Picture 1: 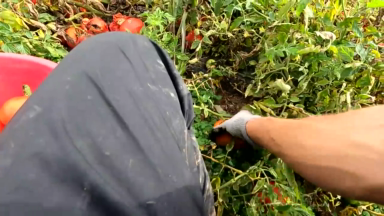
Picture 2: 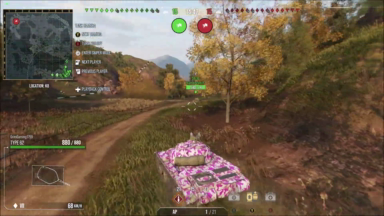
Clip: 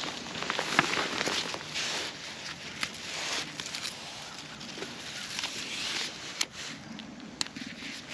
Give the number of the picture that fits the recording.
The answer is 1